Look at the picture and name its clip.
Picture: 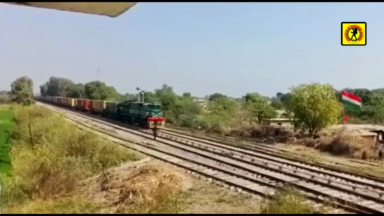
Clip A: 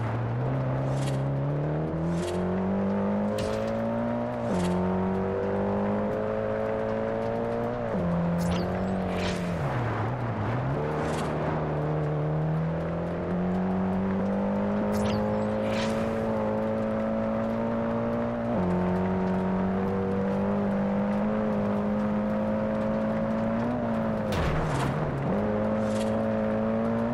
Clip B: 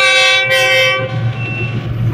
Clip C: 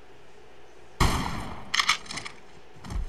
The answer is B